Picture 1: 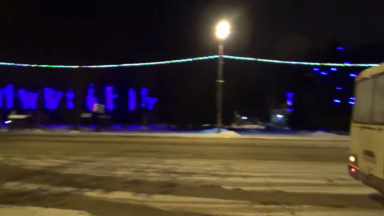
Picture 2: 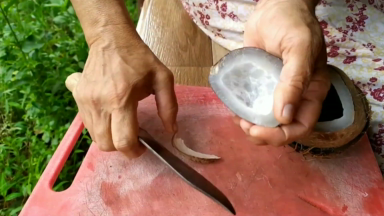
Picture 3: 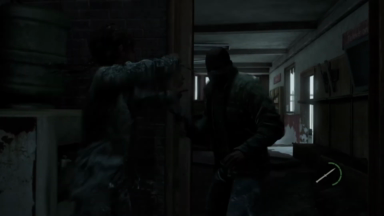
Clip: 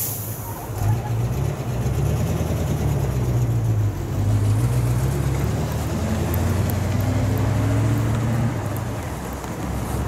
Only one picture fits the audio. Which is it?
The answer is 1